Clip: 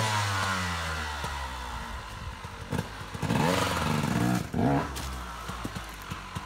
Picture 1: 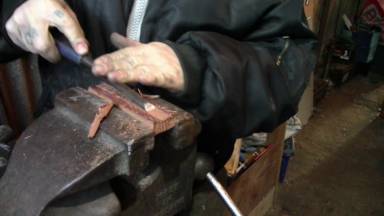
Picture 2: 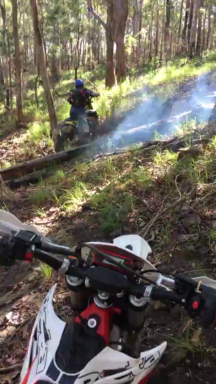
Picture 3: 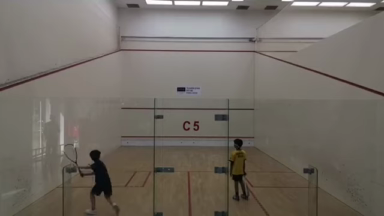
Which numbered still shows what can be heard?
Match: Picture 2